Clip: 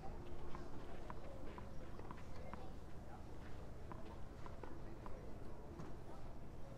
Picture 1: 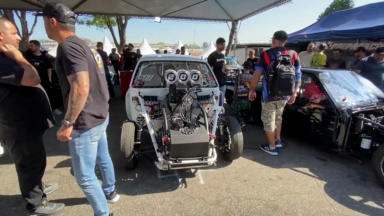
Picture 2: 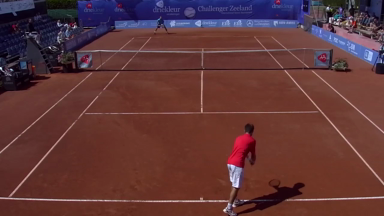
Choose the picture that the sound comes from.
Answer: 2